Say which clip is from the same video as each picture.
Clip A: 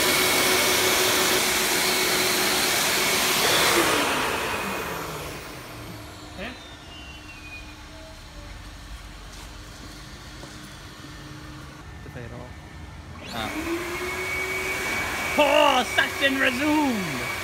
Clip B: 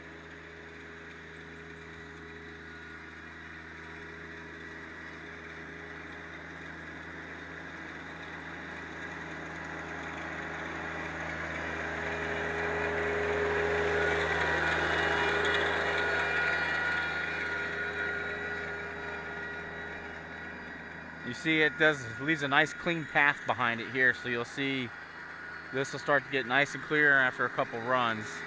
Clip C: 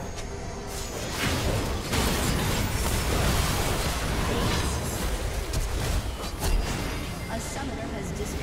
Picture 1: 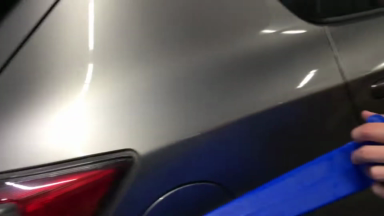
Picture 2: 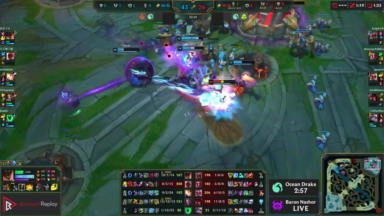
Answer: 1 A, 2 C